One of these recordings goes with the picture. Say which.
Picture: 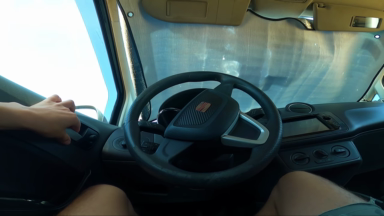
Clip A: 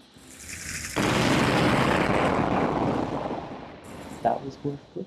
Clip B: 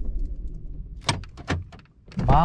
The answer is B